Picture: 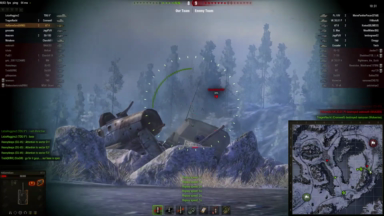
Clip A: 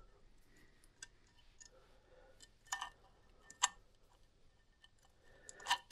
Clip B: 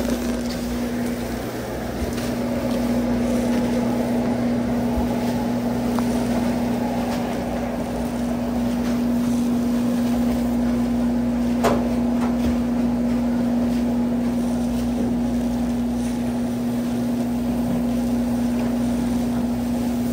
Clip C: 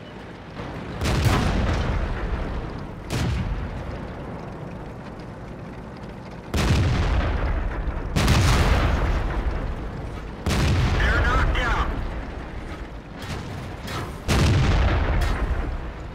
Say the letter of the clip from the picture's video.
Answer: C